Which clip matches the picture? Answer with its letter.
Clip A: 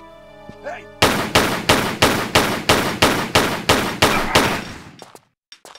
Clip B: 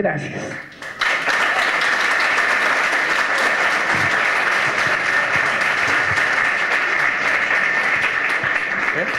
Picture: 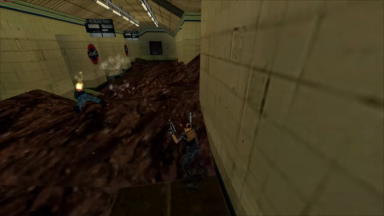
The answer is A